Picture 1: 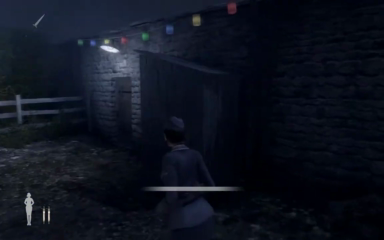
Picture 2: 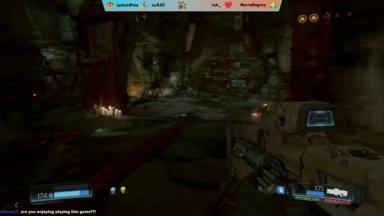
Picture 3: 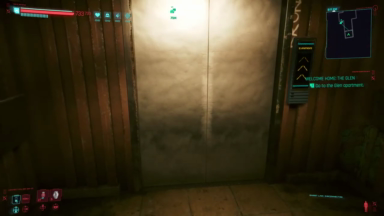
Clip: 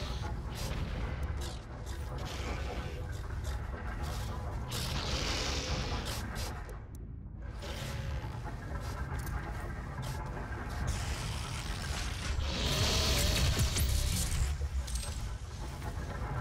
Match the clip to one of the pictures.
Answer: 2